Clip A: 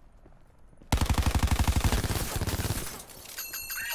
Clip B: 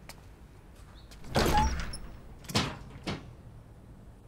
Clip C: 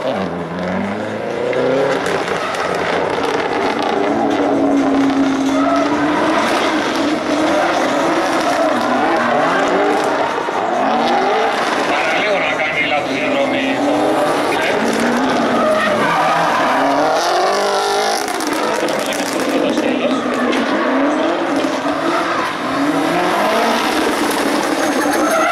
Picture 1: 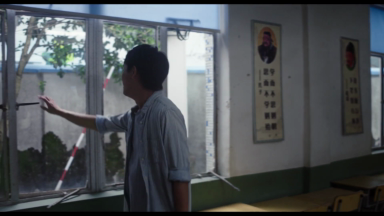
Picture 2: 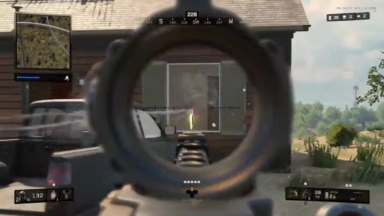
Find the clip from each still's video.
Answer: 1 B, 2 A